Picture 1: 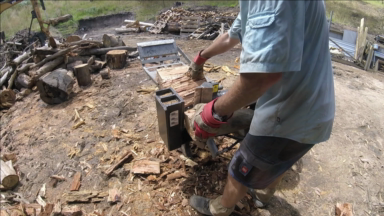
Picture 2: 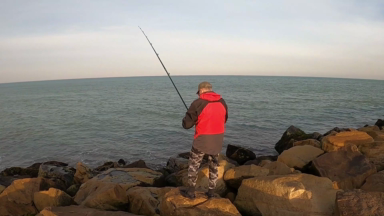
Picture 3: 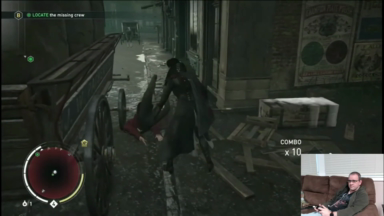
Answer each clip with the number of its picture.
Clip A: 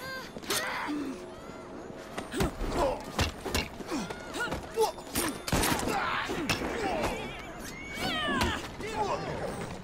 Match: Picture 3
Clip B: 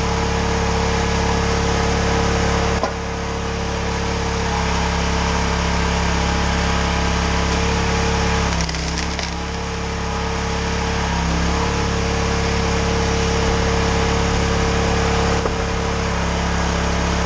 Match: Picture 1